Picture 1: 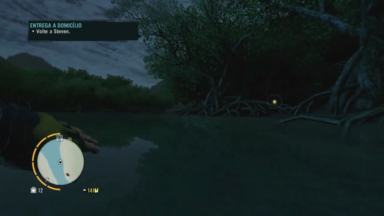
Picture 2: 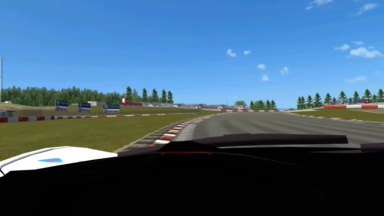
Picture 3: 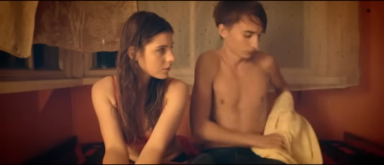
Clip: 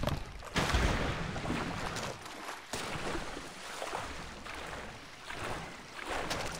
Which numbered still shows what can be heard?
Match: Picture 1